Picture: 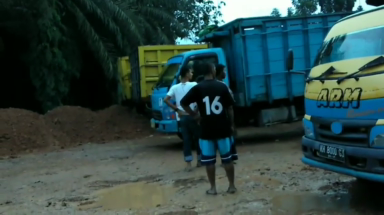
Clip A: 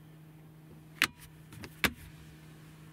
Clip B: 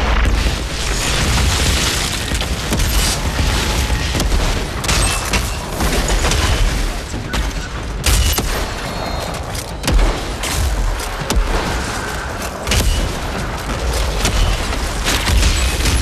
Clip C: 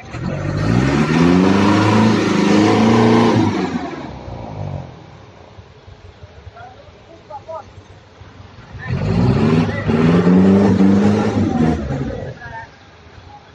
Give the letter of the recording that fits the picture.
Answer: C